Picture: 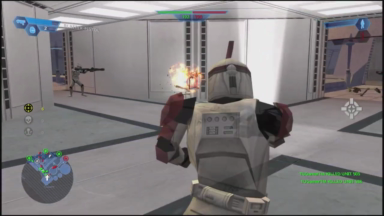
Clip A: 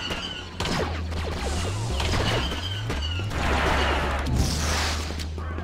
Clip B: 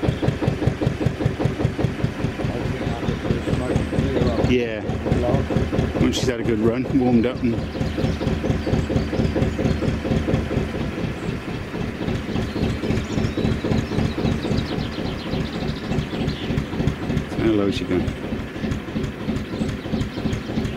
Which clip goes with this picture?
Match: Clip A